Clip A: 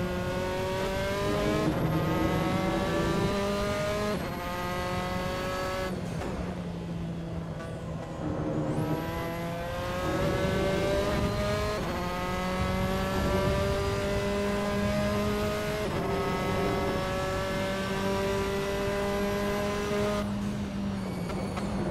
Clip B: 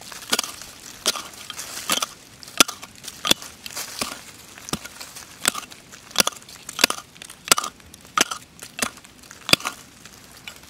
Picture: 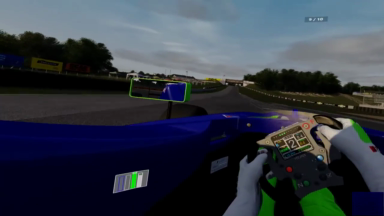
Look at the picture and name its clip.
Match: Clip A